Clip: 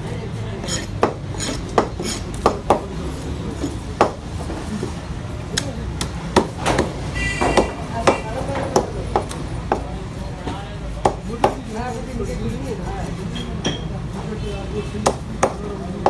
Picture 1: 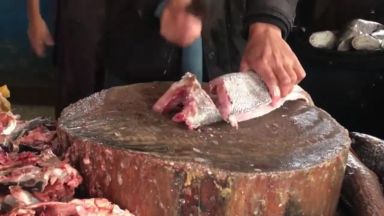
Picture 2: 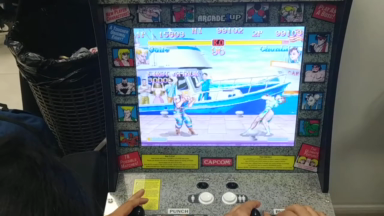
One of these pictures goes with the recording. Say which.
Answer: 1